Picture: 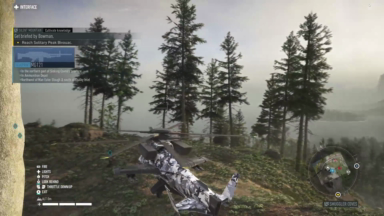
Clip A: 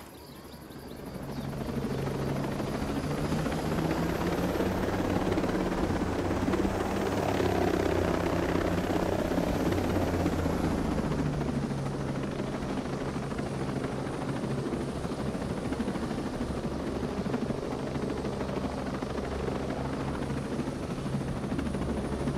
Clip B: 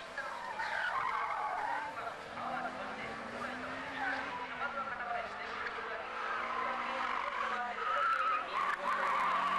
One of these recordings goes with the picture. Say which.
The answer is A